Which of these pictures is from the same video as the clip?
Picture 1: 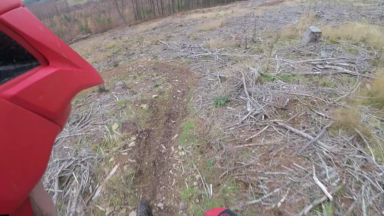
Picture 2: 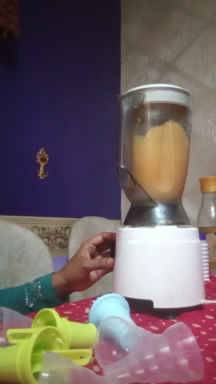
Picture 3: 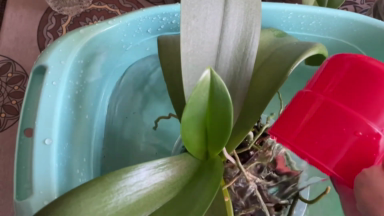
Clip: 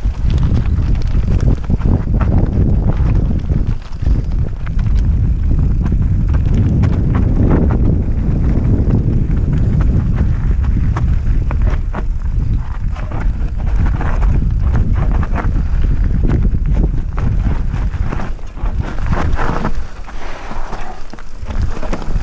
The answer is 1